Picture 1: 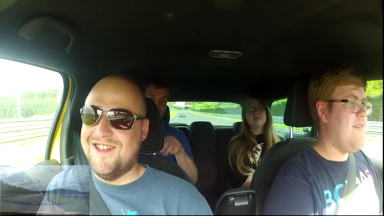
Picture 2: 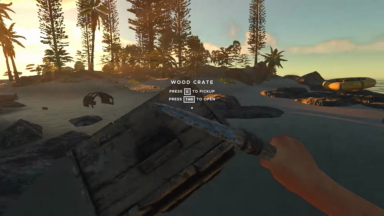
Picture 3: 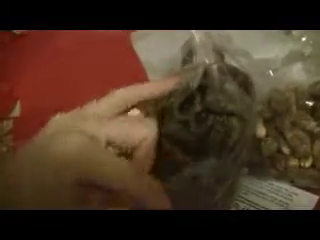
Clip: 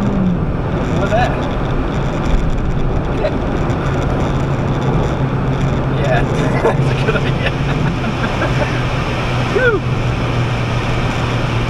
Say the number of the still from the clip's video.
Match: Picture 1